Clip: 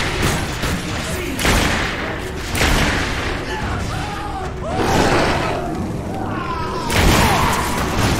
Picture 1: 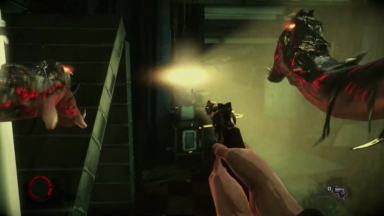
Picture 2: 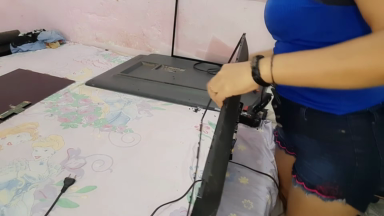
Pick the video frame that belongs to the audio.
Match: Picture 1